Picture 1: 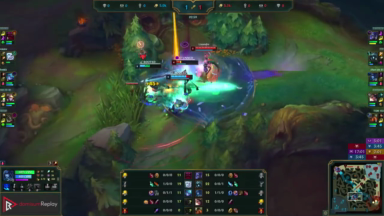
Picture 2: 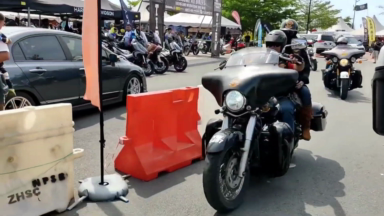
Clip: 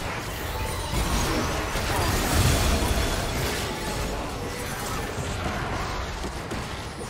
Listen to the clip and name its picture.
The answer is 1